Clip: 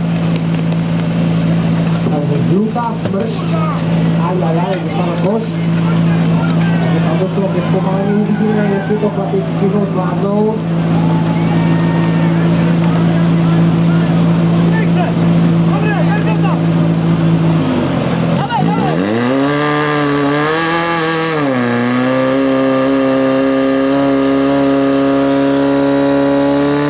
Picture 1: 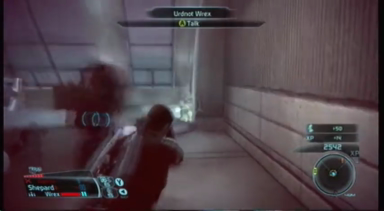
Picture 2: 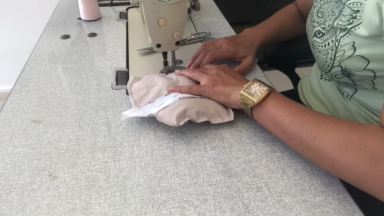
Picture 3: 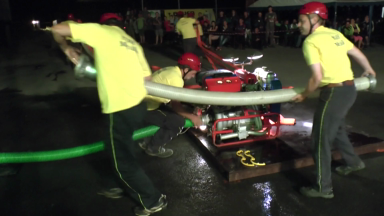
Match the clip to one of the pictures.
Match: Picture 3